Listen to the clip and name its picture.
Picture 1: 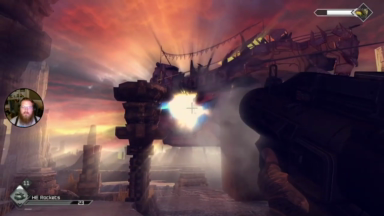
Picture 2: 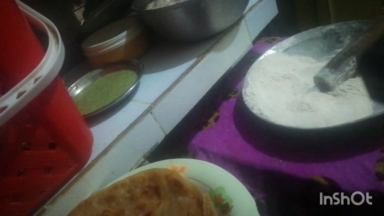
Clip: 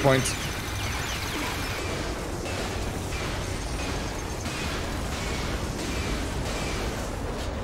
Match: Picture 1